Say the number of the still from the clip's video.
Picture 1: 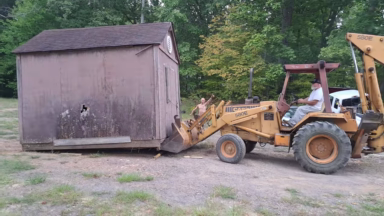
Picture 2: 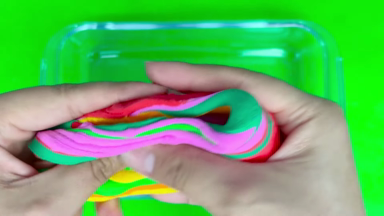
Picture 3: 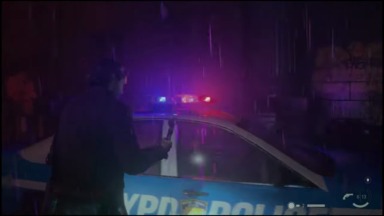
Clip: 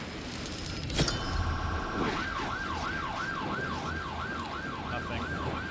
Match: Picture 3